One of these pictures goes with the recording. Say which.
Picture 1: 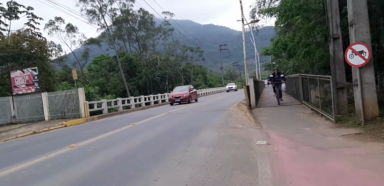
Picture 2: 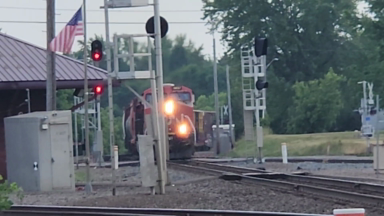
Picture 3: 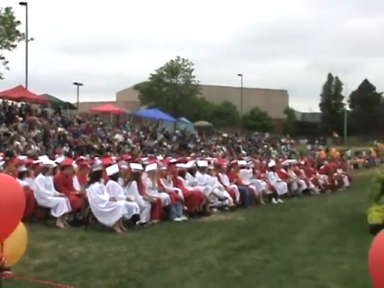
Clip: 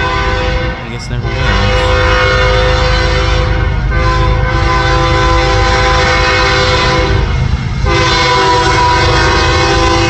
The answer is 2